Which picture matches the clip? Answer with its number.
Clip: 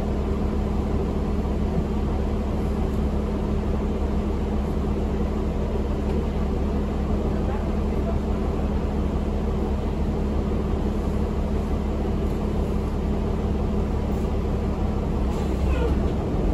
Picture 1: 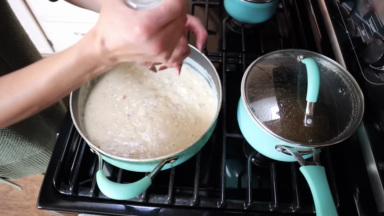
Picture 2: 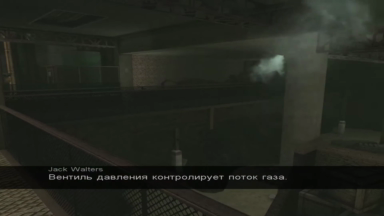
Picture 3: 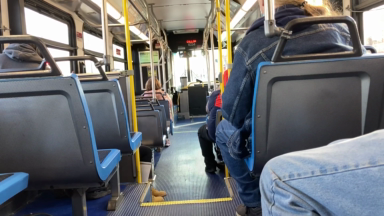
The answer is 3